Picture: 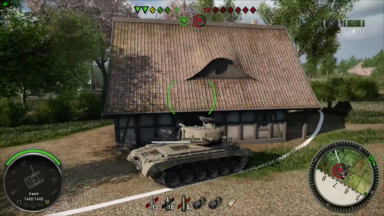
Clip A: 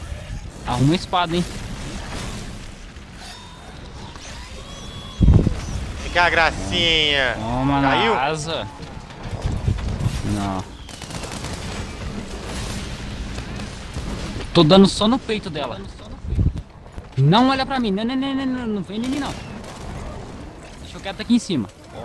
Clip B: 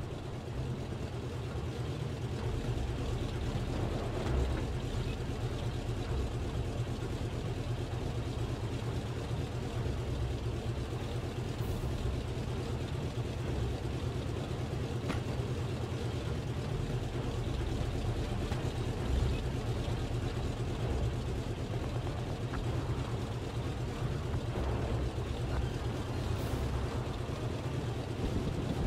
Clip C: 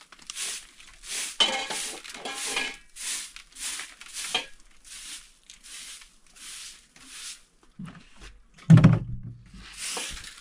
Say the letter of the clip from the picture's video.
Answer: B